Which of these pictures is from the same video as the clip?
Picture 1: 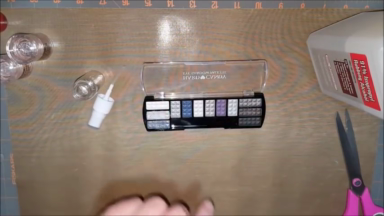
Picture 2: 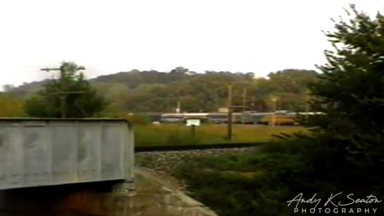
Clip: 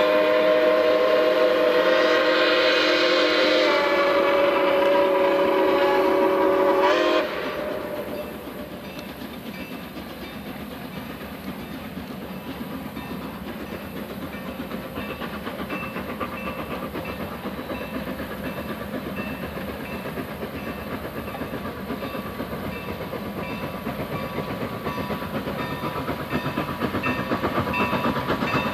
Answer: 2